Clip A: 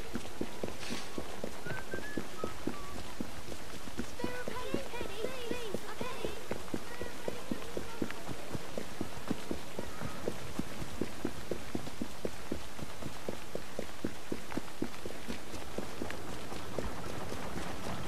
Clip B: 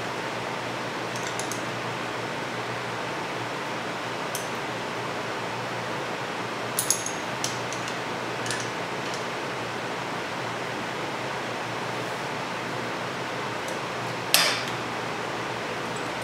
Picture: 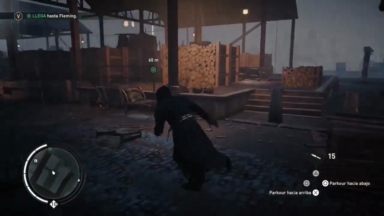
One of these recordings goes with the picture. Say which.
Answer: A